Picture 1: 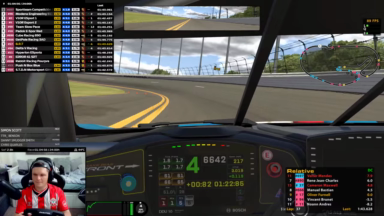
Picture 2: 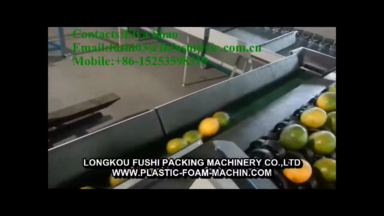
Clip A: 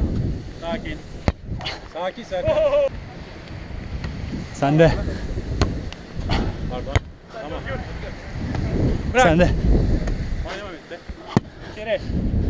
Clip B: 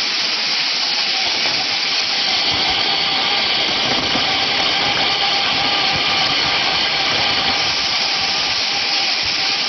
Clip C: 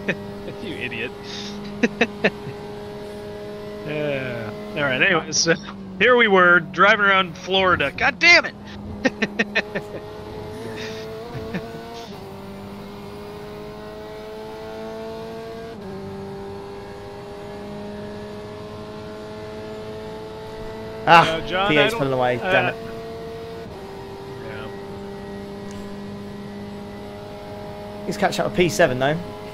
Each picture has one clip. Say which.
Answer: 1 C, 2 B